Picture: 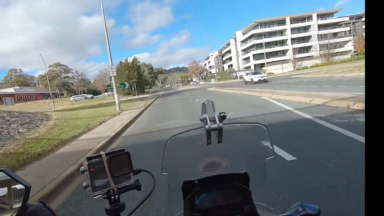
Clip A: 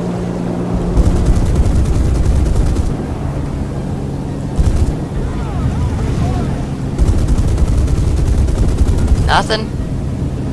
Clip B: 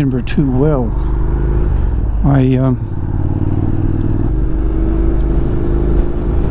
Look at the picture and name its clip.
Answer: B